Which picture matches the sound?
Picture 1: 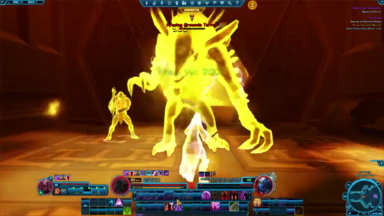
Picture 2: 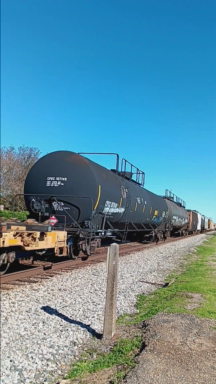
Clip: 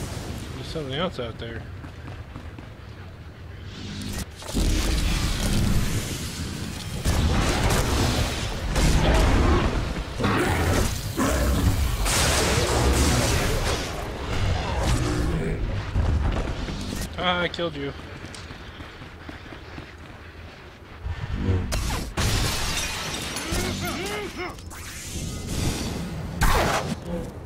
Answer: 1